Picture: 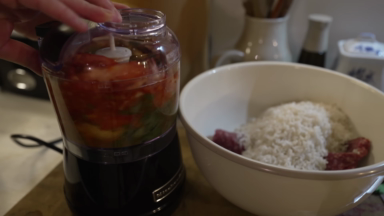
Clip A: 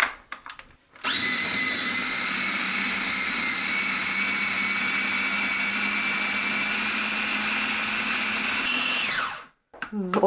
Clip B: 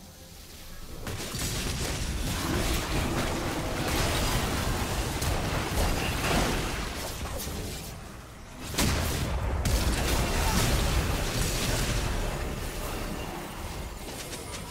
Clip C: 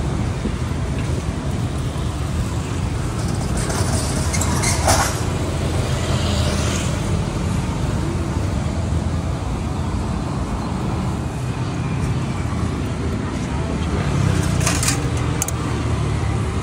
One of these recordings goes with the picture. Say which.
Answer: A